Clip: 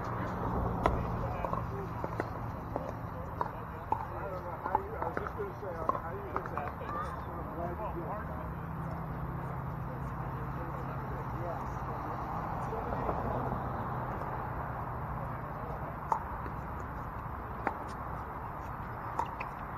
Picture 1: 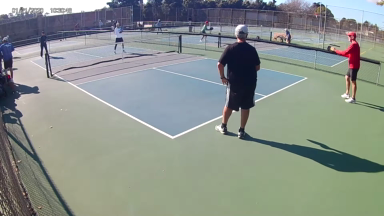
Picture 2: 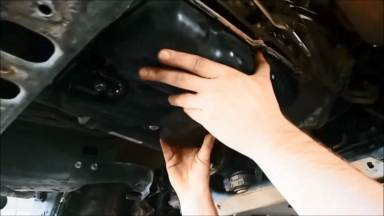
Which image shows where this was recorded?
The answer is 1